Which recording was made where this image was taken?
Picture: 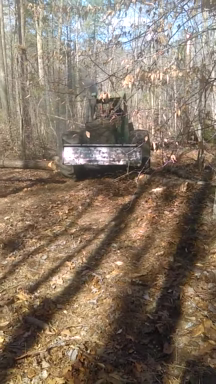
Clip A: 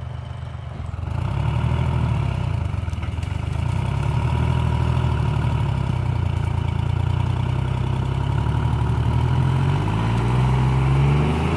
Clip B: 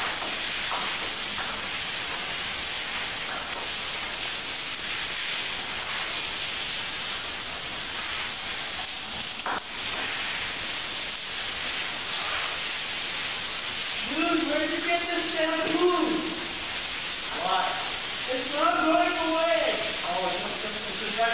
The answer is A